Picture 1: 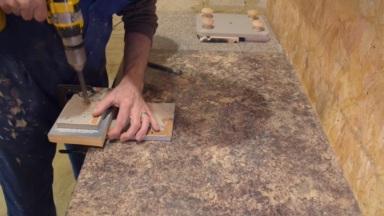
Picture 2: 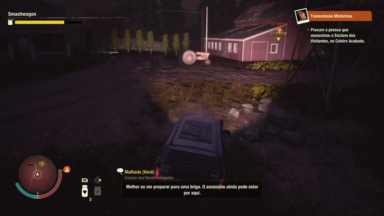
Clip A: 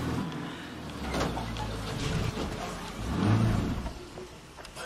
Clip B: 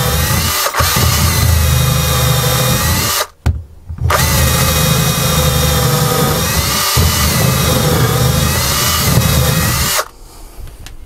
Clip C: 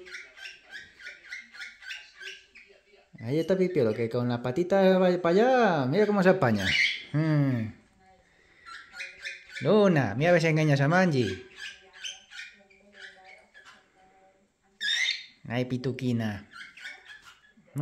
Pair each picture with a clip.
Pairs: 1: B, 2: A